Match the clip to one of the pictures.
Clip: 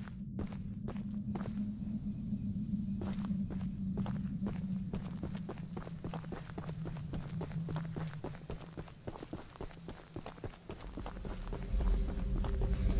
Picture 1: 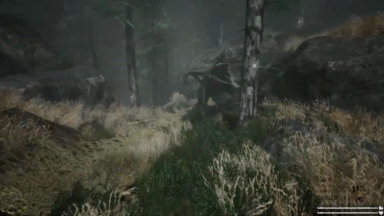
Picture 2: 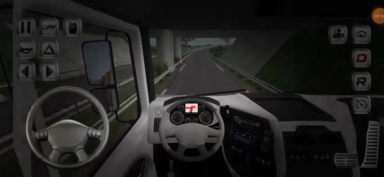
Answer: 1